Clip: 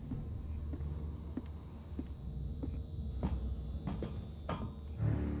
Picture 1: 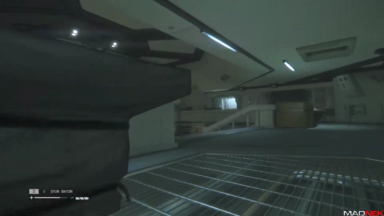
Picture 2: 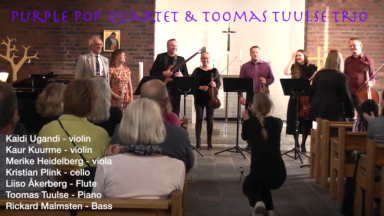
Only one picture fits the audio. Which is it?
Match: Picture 1